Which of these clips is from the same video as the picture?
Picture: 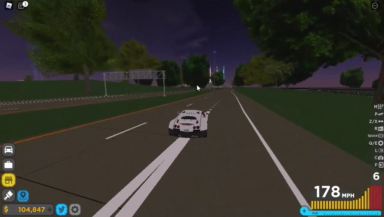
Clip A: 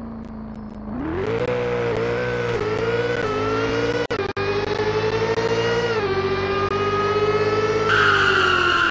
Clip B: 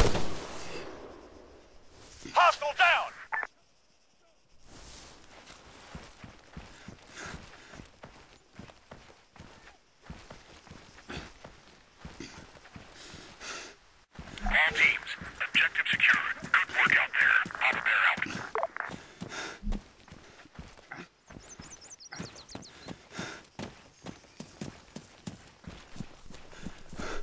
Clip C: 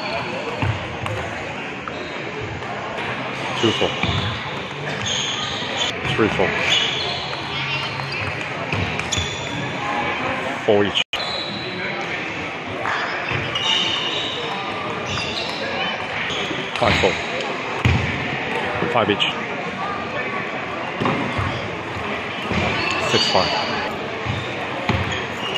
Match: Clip A